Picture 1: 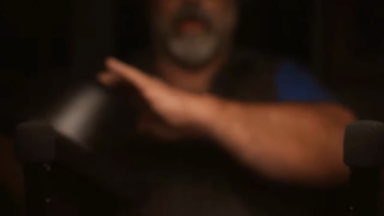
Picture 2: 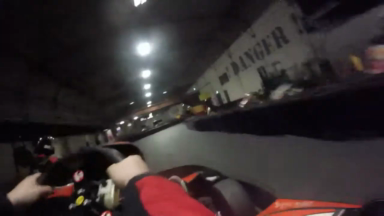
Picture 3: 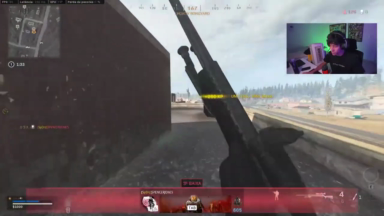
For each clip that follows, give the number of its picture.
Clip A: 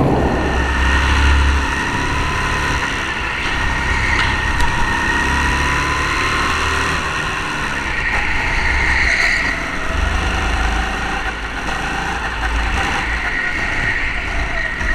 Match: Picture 2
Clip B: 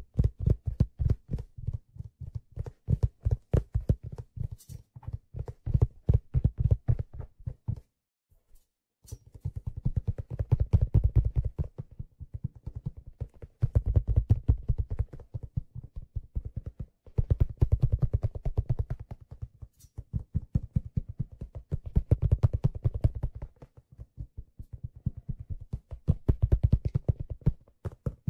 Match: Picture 1